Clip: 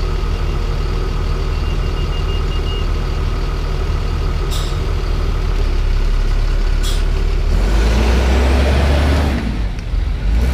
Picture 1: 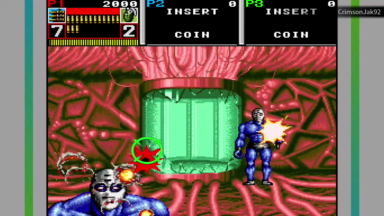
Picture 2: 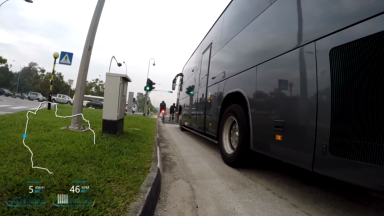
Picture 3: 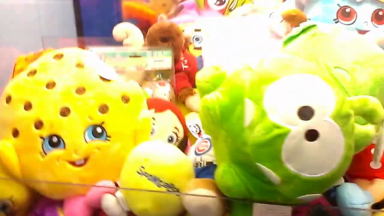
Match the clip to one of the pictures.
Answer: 2